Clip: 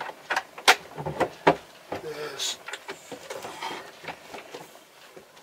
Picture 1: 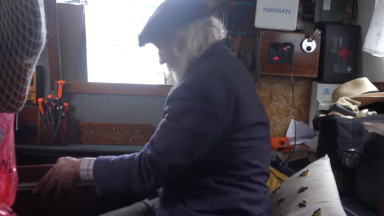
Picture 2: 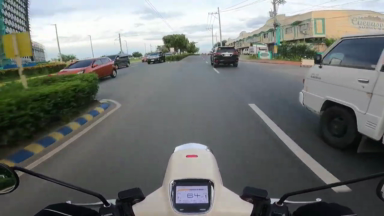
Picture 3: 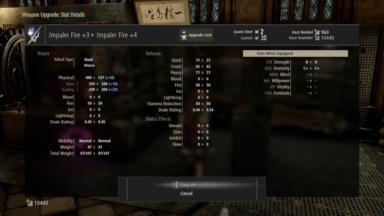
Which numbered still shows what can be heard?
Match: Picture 1